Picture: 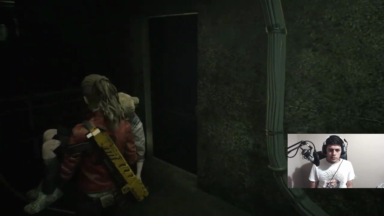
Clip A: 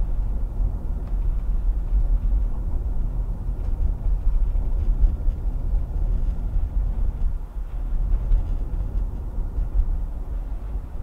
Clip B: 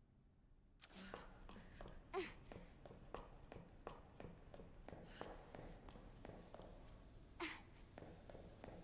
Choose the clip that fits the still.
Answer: B